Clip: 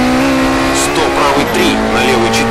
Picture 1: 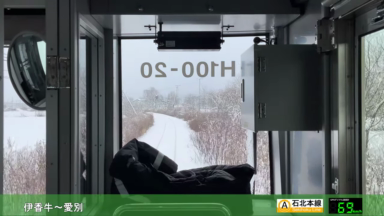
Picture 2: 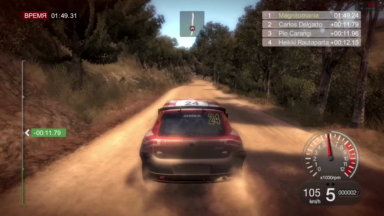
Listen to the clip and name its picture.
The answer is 2